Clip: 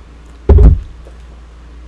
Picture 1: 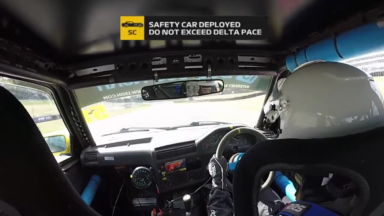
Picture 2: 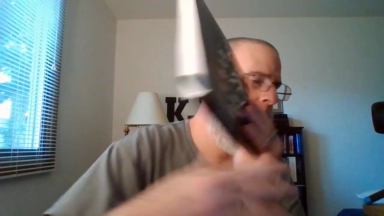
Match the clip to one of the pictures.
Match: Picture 2